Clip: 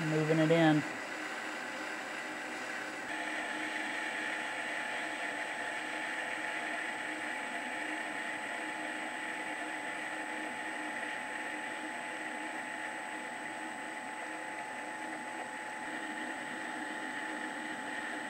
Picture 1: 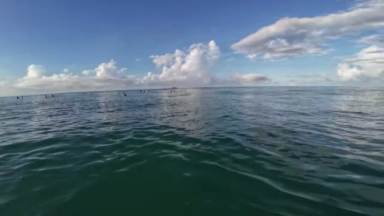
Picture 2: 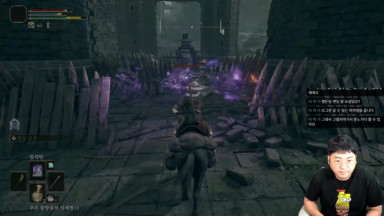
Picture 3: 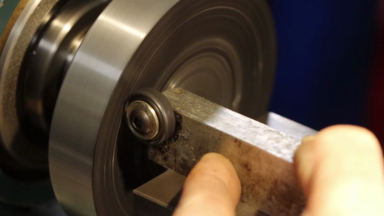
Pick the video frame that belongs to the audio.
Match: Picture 3